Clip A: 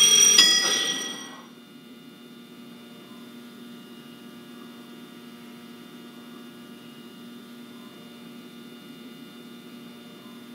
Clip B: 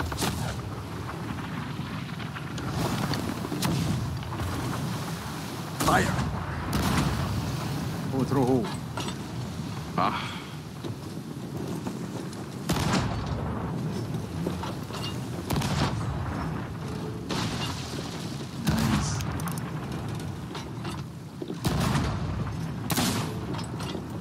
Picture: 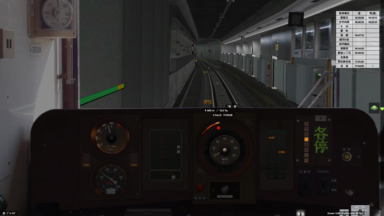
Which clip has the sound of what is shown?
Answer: A